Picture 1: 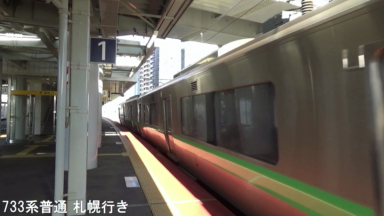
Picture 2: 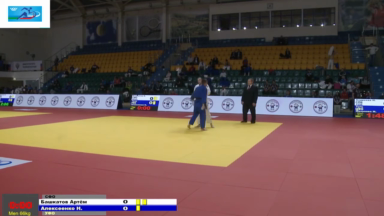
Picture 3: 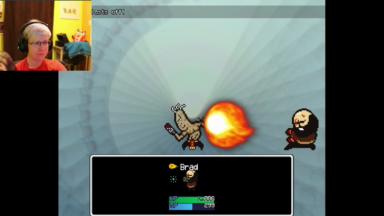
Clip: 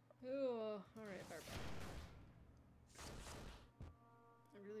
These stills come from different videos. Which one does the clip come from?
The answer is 3